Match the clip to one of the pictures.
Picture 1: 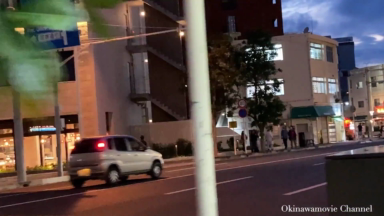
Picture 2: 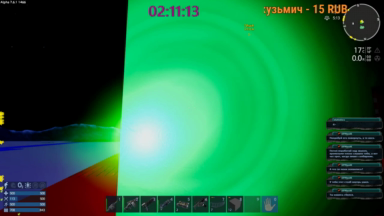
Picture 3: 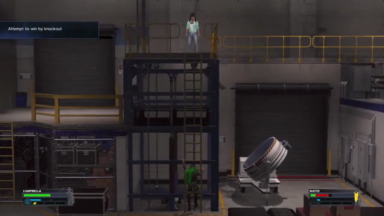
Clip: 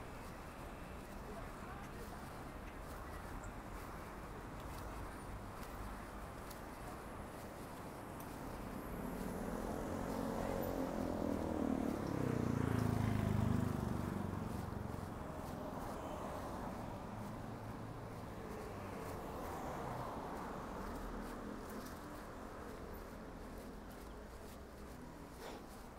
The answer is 1